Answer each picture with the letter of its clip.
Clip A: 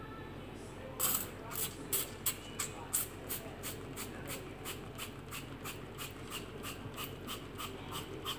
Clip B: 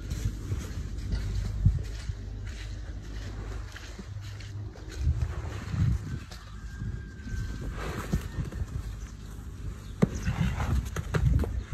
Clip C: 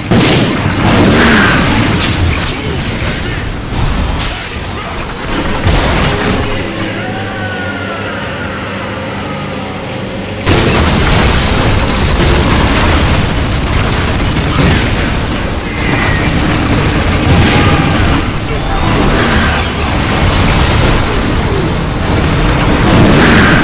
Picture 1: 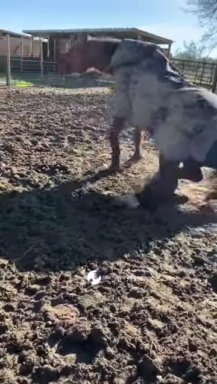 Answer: B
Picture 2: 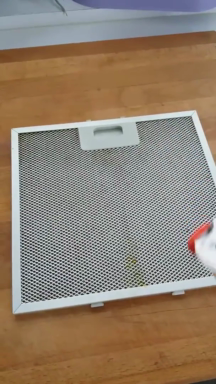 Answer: A